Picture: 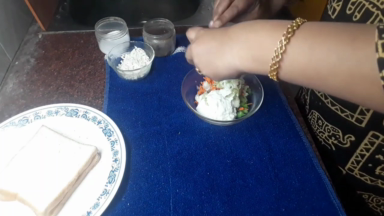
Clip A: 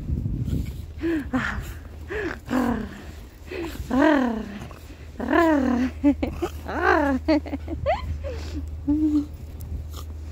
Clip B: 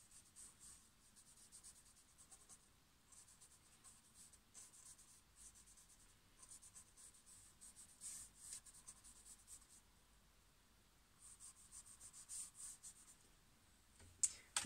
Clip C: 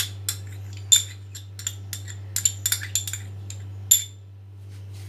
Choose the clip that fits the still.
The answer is C